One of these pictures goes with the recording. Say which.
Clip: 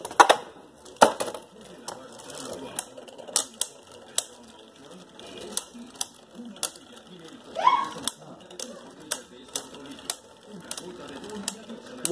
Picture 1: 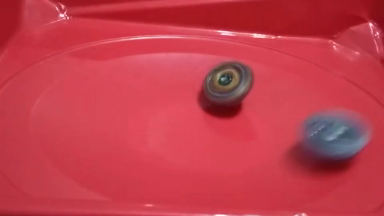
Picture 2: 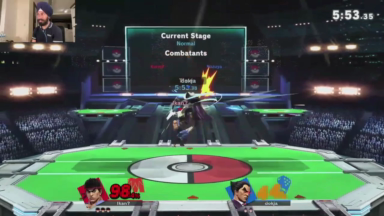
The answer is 1